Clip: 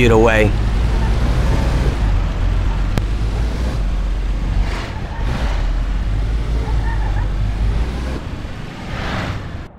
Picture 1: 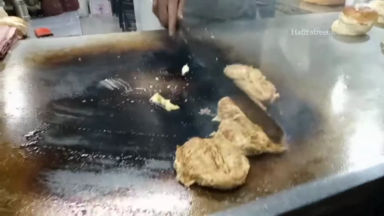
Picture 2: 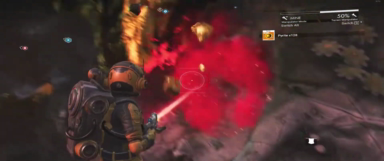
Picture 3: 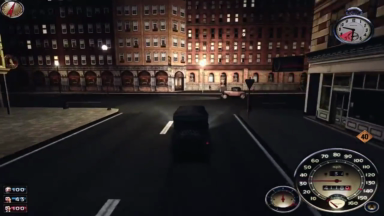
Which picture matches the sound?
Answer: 3